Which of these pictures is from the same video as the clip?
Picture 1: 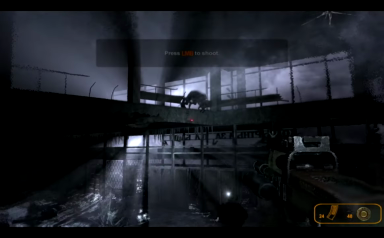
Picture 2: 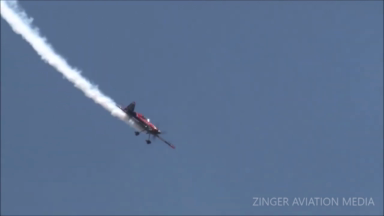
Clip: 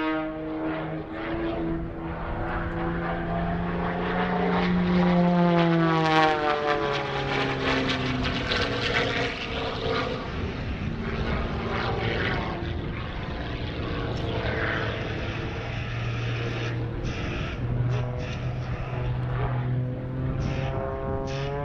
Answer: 2